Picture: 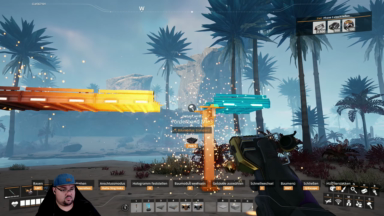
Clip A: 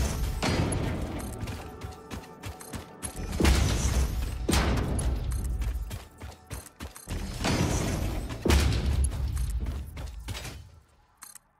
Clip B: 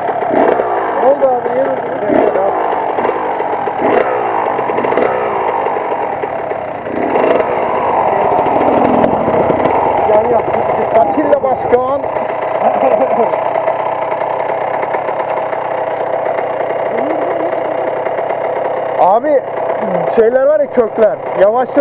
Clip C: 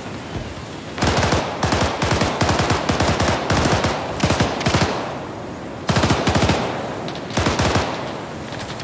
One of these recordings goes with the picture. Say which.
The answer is A